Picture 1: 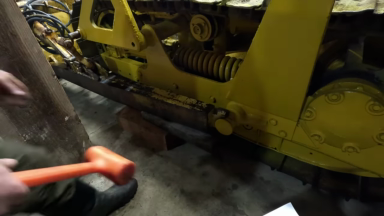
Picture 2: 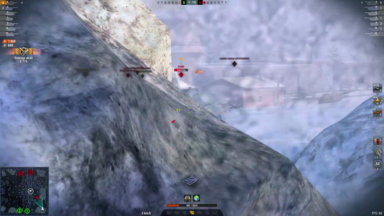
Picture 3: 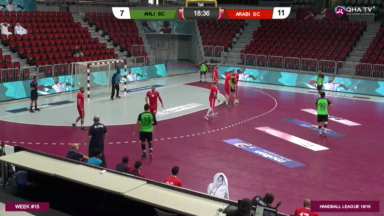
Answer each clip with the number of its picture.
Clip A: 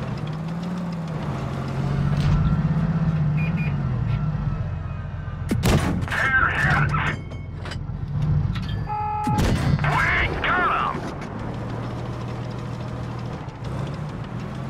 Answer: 2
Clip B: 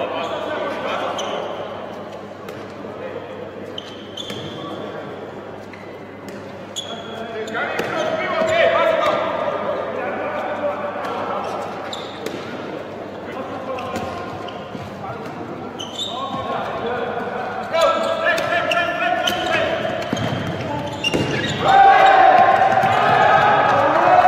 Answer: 3